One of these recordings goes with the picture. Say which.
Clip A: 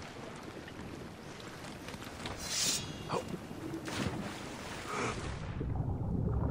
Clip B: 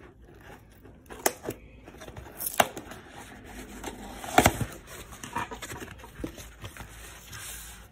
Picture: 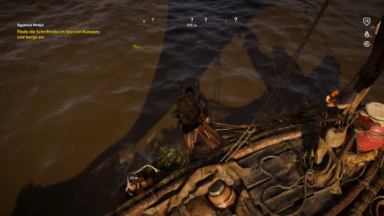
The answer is A